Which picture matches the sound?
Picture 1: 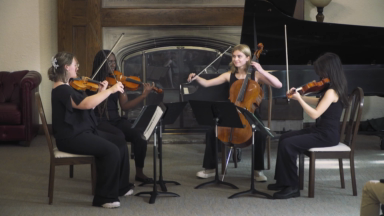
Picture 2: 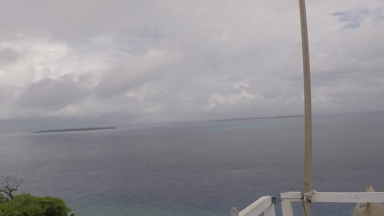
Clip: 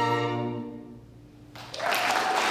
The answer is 1